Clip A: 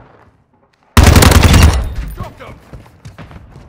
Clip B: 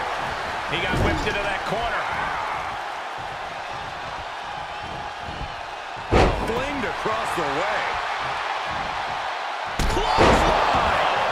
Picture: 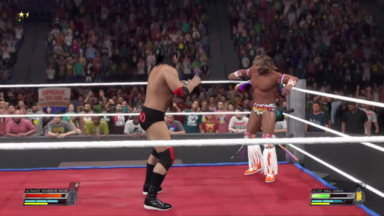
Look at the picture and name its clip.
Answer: B